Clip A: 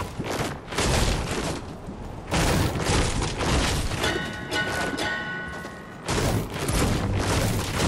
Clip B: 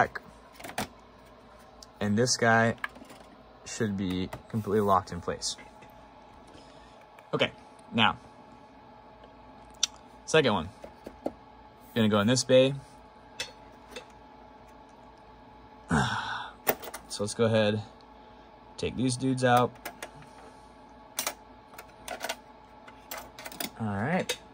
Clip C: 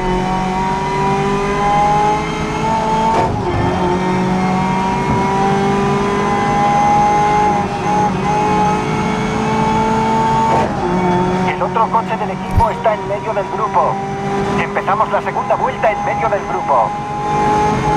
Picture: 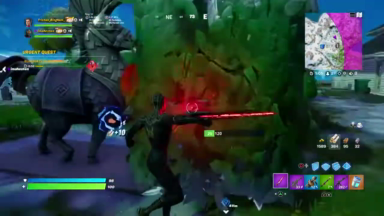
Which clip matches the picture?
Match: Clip A